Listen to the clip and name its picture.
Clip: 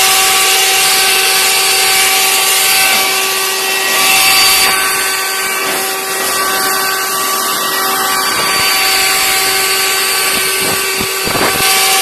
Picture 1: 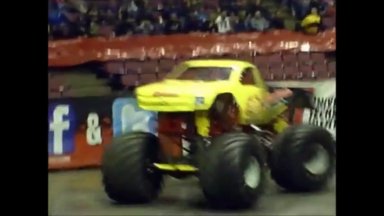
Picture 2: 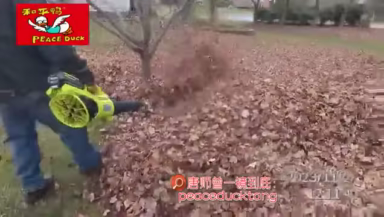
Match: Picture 2